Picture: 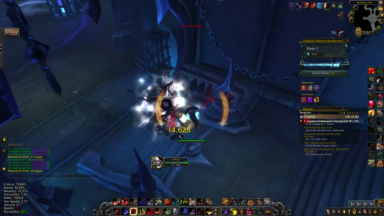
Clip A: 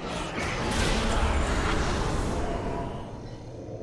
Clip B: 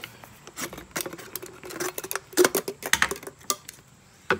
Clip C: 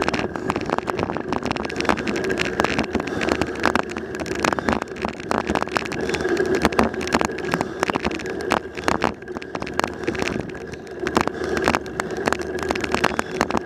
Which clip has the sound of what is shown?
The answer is A